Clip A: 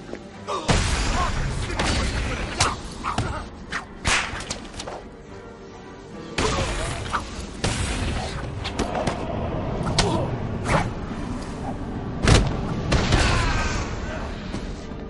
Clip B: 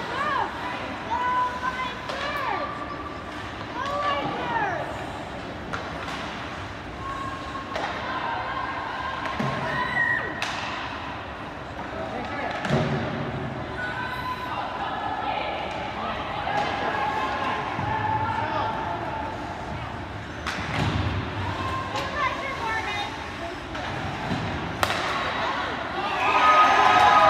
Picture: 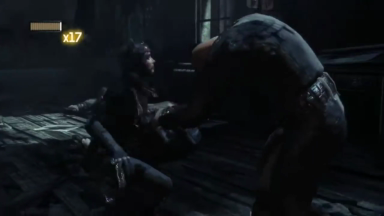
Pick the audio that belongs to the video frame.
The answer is A